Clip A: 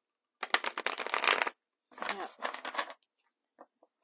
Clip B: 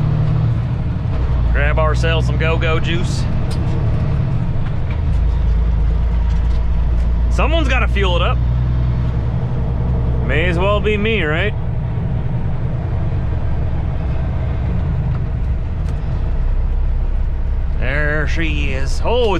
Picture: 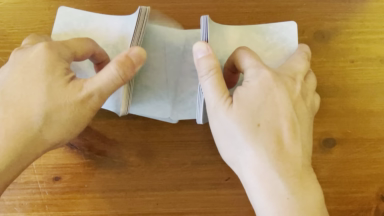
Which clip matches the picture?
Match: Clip A